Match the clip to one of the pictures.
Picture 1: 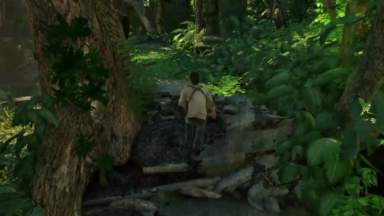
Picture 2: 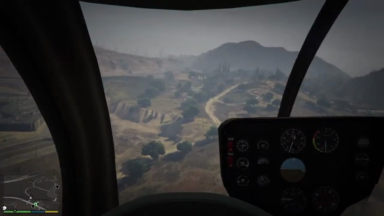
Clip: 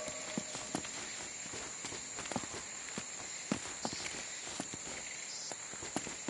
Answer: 1